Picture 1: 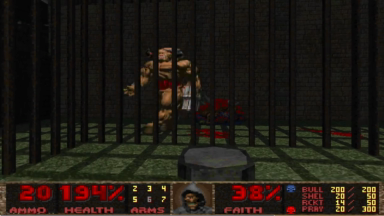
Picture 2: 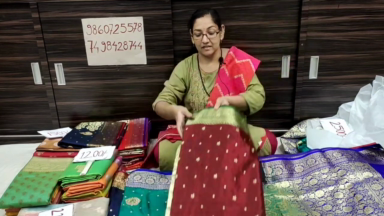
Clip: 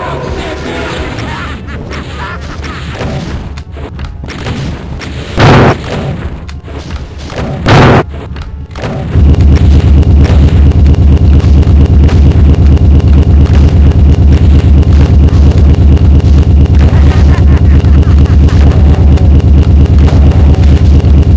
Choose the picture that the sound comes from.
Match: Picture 1